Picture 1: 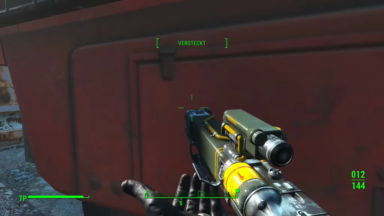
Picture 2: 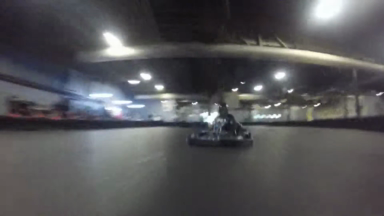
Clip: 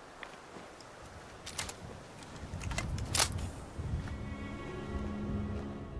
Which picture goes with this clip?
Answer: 1